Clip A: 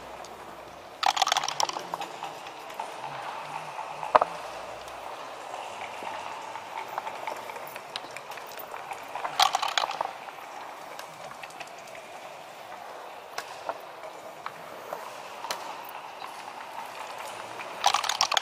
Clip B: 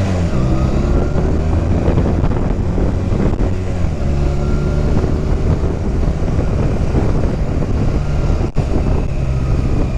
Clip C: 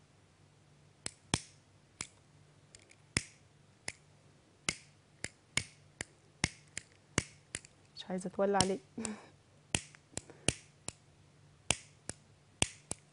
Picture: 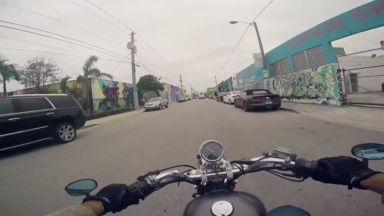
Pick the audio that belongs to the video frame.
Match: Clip B